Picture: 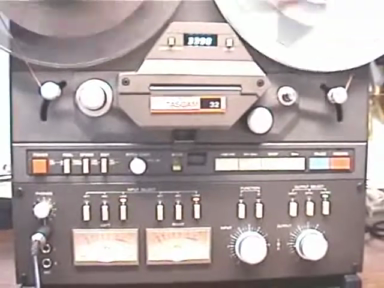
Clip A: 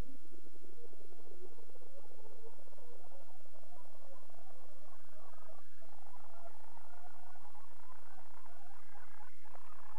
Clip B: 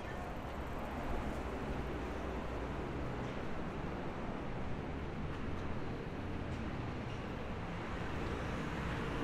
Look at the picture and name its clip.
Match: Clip A